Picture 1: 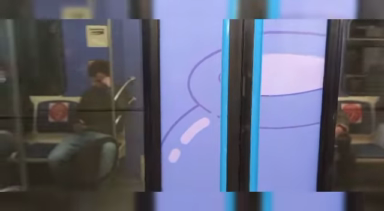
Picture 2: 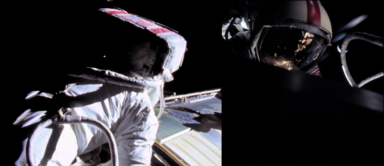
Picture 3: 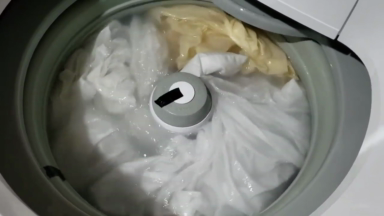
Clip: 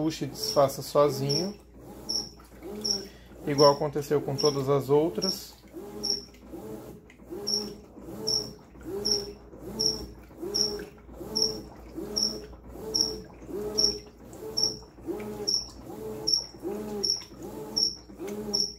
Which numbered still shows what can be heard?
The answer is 3